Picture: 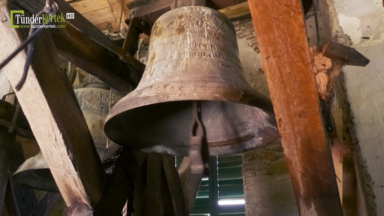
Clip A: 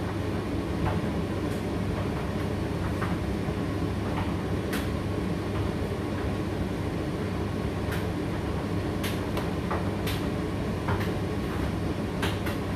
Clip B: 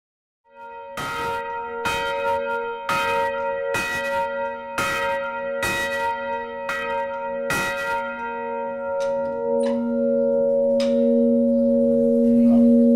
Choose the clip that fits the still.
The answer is B